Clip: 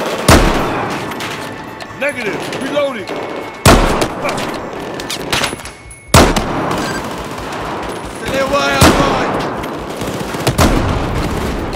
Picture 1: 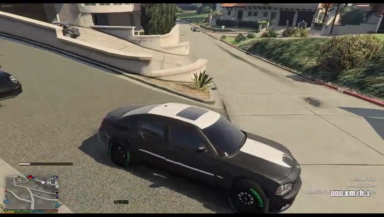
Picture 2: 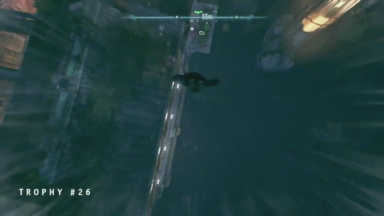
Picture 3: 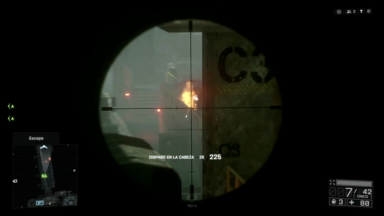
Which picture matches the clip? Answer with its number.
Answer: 3